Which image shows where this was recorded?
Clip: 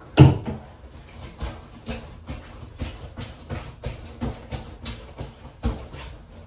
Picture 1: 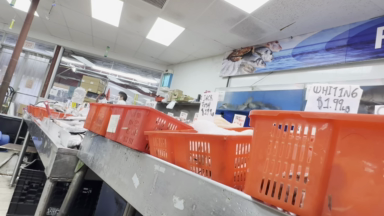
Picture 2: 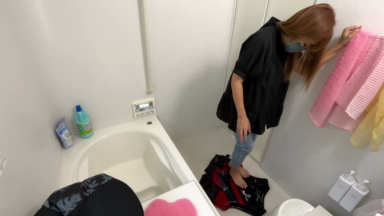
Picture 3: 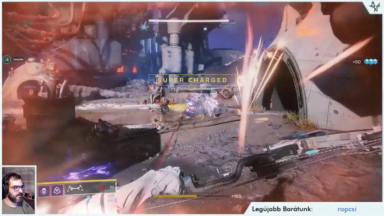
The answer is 2